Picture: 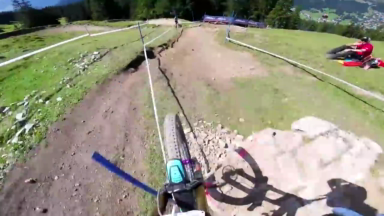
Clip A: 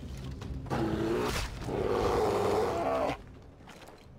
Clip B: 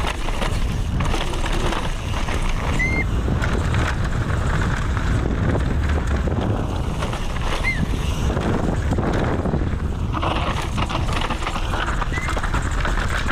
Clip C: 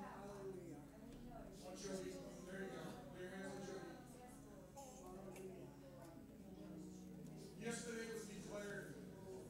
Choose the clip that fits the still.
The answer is B